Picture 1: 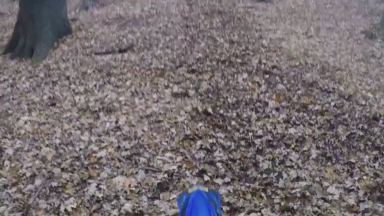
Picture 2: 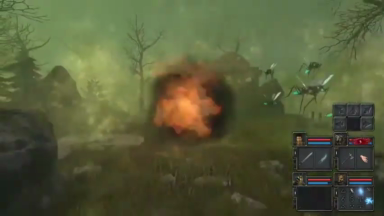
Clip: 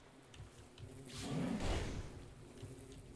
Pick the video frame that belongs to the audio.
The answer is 2